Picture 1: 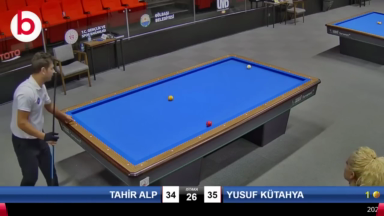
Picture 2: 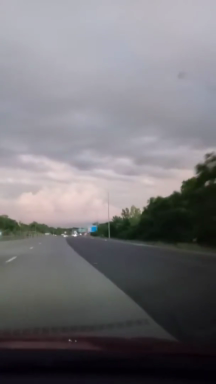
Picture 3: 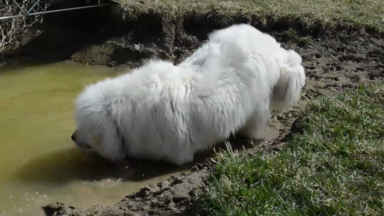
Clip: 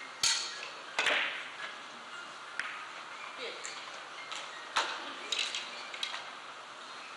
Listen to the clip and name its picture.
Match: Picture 1